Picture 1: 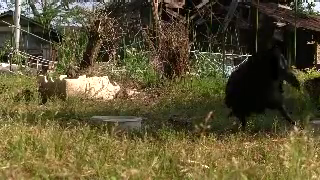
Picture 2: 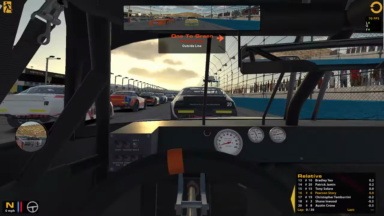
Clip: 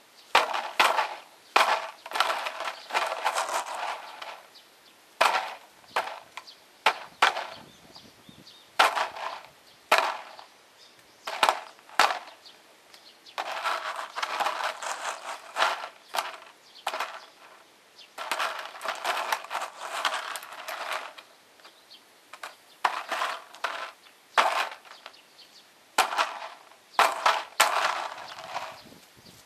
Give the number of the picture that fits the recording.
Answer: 1